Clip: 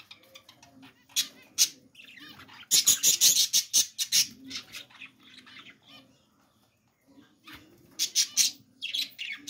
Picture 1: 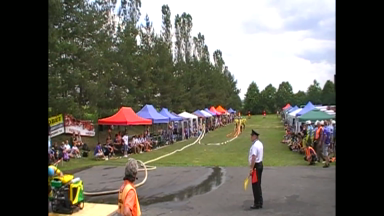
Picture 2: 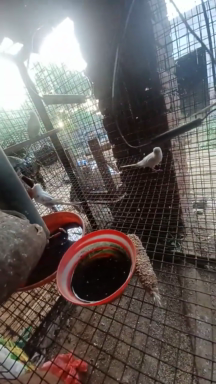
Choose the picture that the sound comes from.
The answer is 2